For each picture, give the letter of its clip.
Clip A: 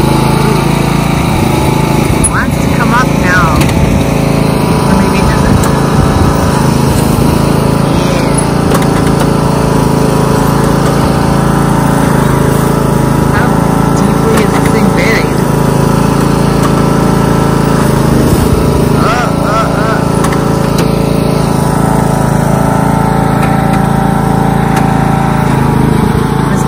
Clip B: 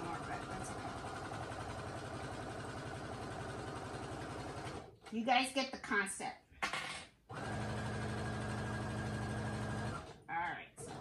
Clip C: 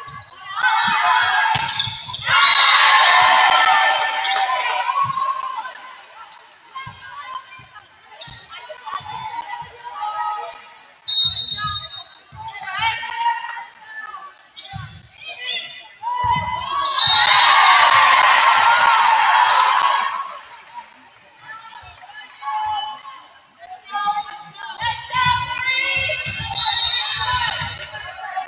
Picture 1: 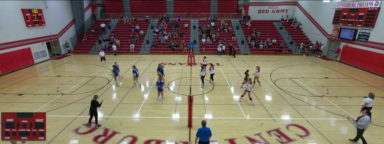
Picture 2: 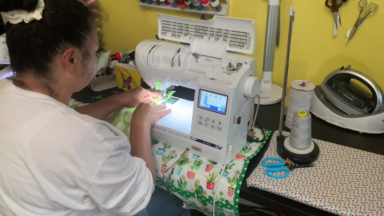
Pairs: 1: C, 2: B